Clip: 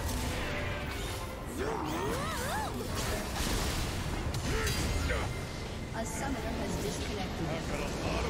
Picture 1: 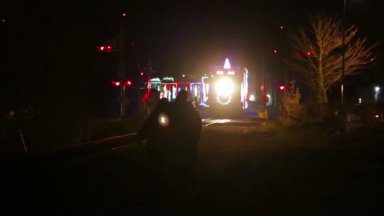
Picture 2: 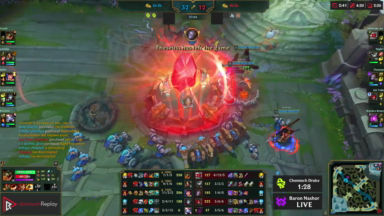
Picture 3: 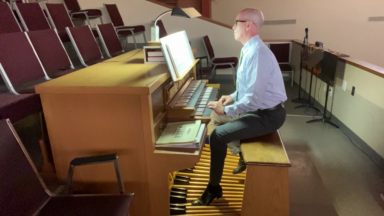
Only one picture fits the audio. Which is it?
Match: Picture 2